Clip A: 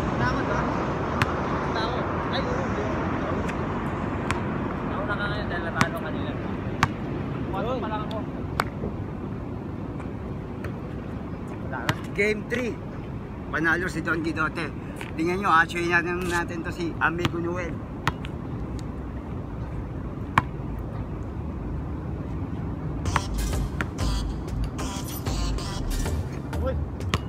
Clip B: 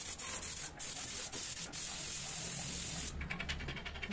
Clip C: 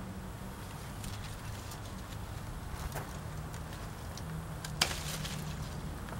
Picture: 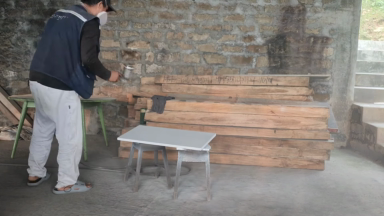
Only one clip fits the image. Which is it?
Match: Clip B